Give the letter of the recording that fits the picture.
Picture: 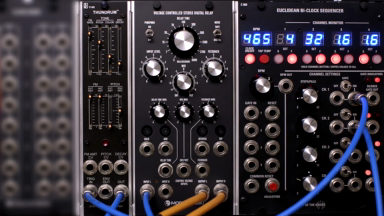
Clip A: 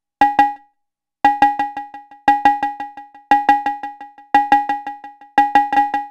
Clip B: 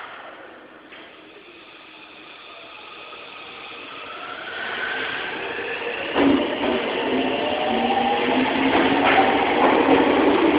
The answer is A